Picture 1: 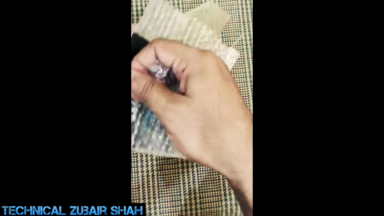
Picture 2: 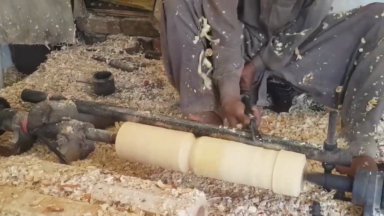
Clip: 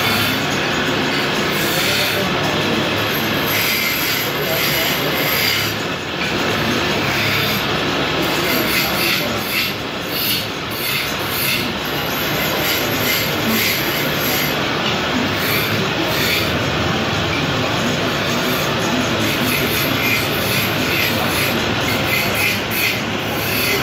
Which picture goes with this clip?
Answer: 2